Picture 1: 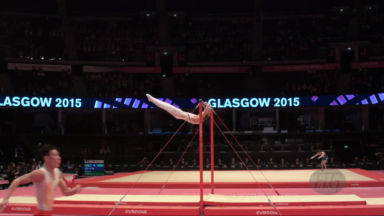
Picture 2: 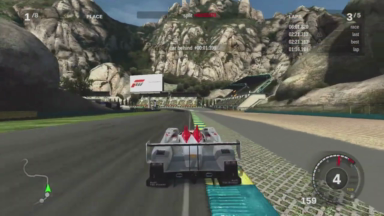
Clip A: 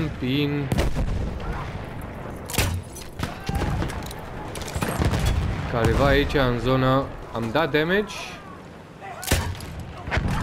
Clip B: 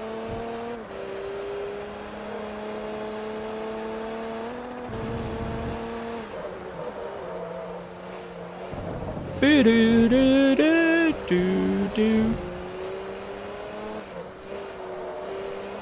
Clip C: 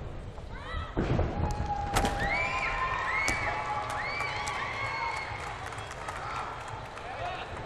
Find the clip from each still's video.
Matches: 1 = C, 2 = B